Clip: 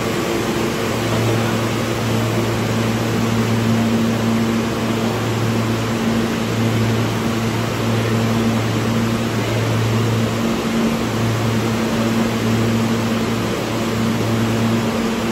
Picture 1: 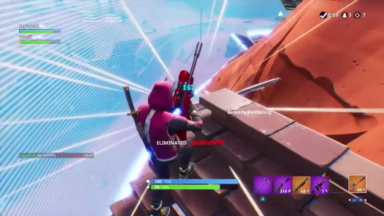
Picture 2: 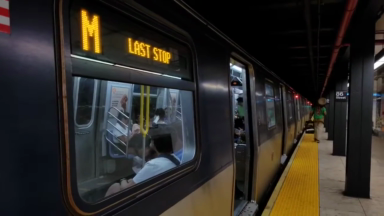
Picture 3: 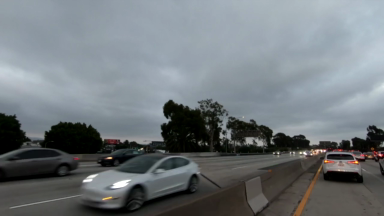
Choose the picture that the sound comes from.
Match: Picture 2